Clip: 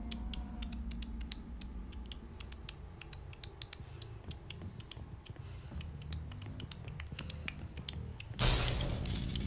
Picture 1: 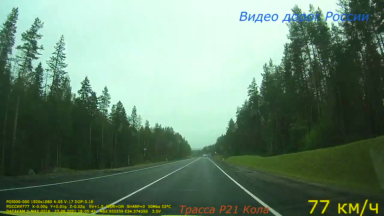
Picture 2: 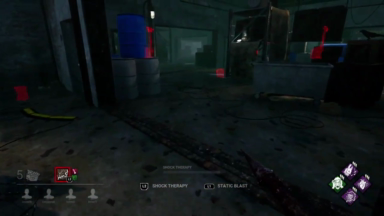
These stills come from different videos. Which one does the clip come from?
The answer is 2